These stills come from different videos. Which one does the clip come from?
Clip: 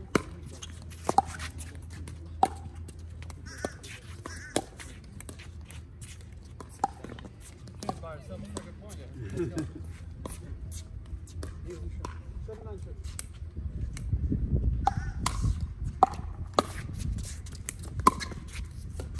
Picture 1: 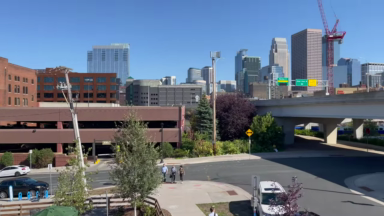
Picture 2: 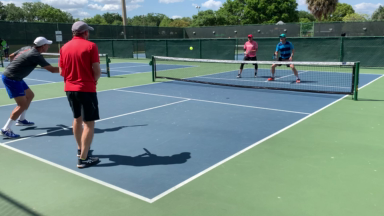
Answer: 2